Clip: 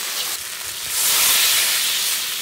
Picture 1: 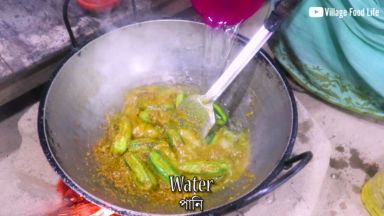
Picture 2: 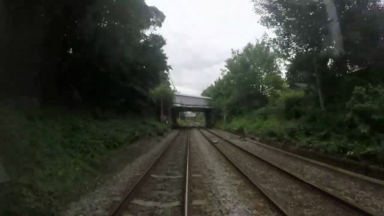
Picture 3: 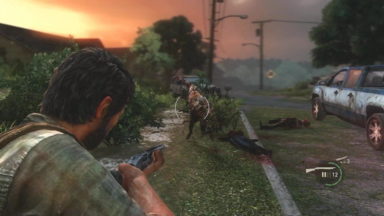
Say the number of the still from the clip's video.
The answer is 1